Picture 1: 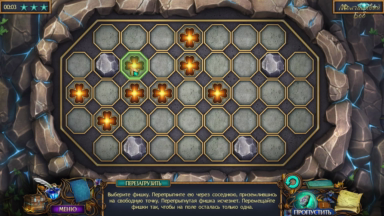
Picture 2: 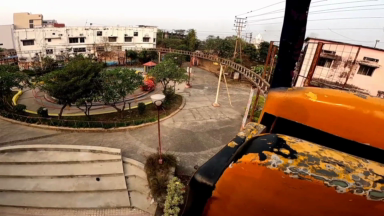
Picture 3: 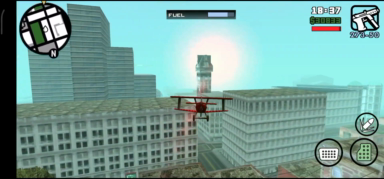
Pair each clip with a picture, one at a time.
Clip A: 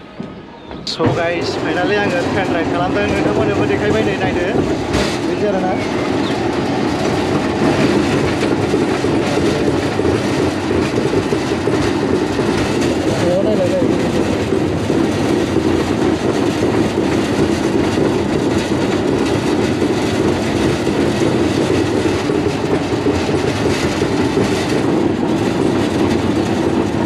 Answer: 2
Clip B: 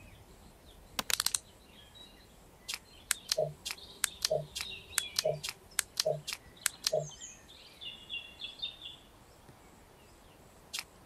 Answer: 1